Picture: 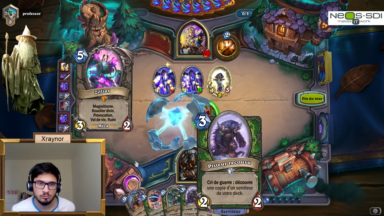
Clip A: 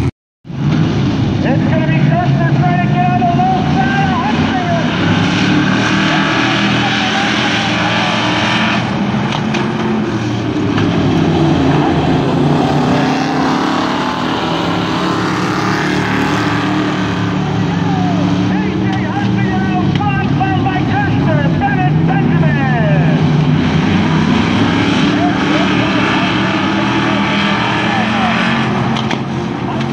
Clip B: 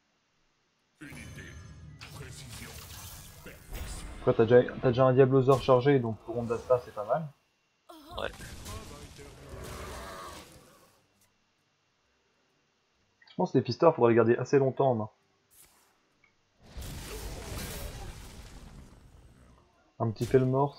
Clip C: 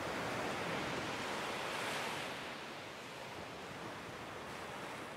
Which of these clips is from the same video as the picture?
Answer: B